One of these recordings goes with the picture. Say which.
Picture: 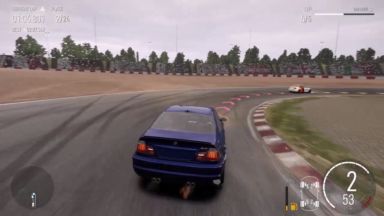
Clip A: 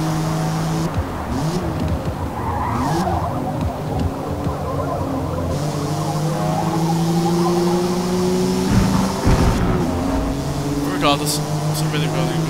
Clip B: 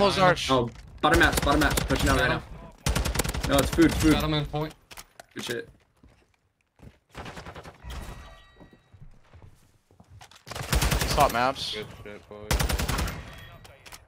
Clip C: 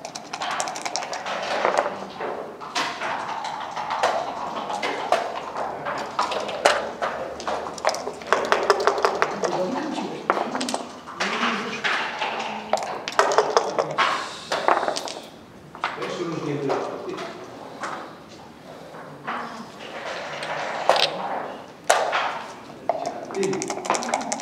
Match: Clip A